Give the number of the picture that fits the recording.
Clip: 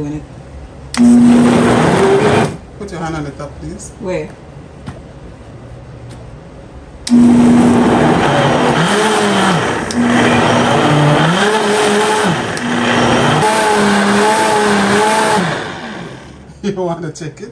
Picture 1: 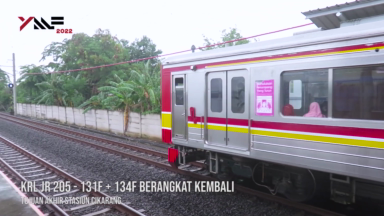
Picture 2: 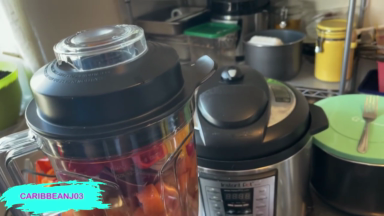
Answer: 2